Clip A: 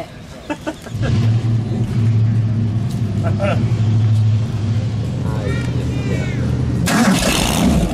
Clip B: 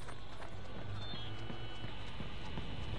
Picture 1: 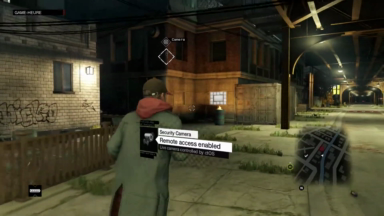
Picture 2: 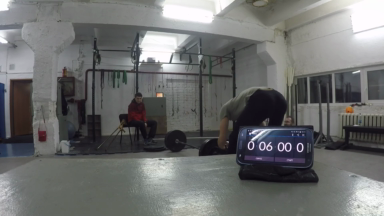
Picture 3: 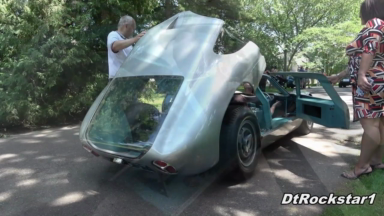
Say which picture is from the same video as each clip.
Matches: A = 3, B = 1